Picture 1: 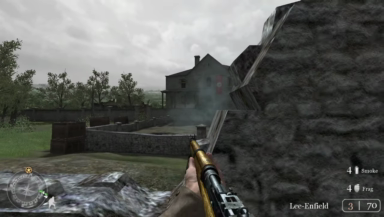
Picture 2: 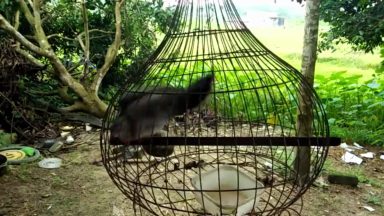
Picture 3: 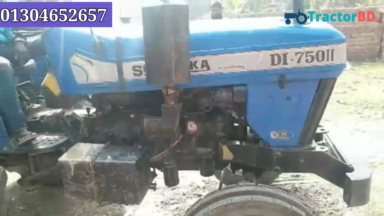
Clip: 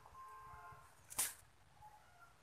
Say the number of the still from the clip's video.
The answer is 2